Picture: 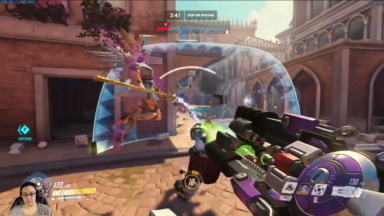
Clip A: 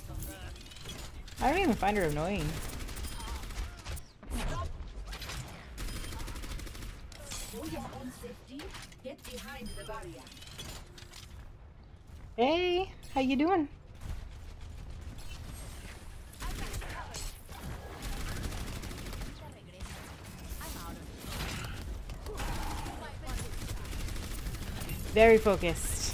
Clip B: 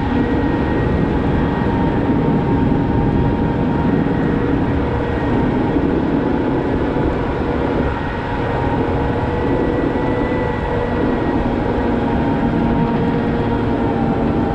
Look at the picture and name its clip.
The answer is A